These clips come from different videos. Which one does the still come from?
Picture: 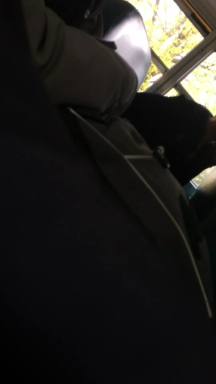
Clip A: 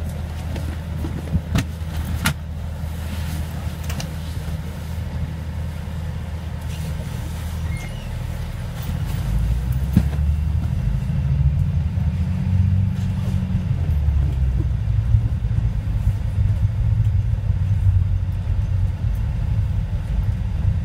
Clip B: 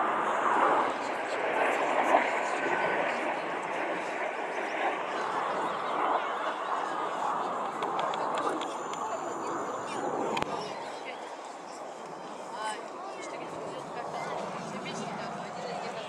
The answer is A